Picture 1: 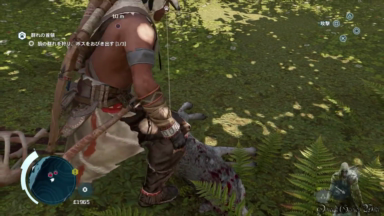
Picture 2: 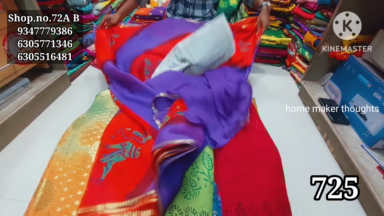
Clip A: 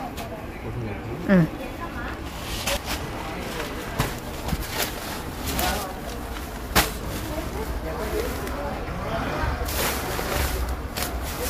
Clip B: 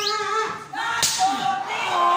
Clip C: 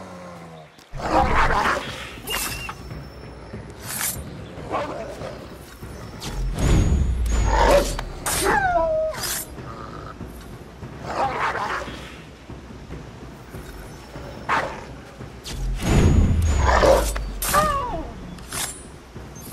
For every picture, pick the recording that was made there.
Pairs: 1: C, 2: A